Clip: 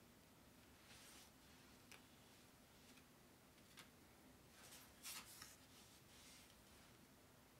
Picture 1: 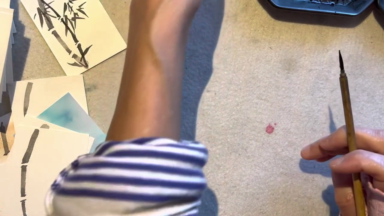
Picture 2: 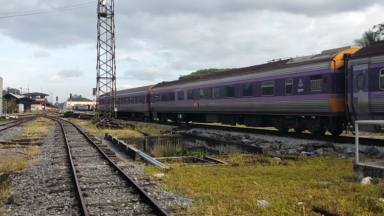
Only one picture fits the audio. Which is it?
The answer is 1